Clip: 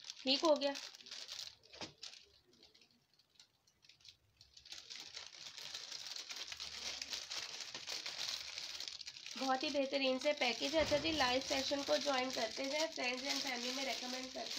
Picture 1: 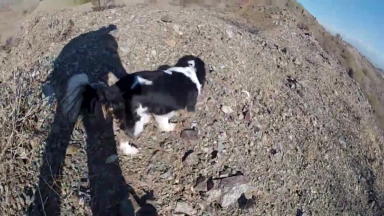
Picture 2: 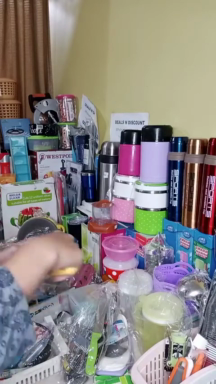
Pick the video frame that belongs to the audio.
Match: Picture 2